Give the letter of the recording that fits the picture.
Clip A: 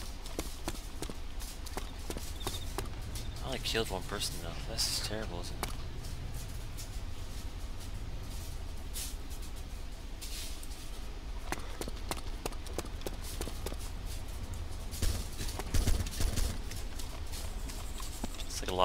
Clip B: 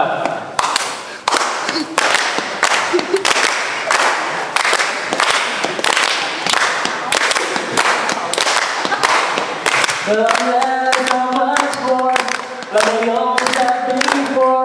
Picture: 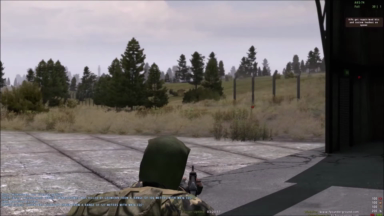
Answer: A